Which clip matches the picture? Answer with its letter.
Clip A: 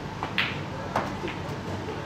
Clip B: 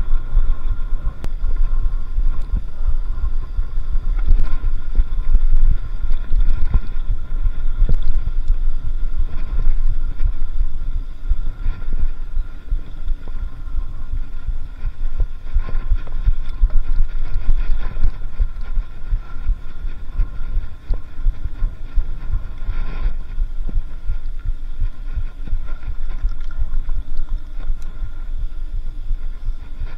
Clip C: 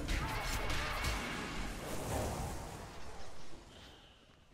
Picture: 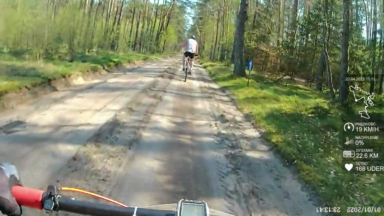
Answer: B